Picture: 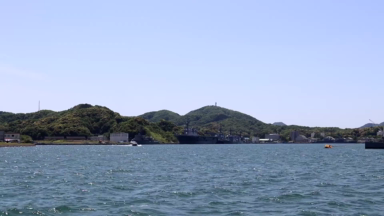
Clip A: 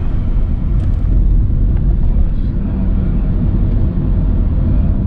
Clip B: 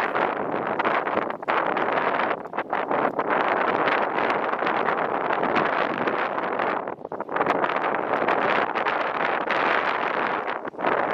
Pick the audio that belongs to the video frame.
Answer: B